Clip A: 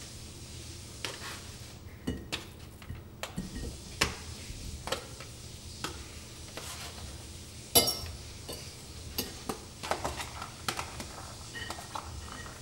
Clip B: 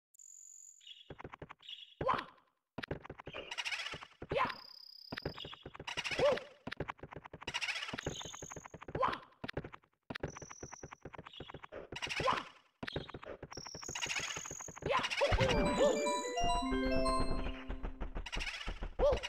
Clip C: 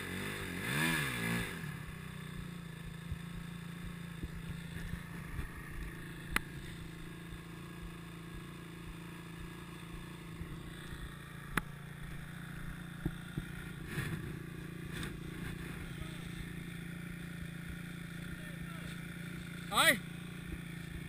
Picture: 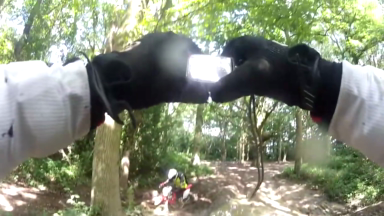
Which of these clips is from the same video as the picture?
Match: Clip C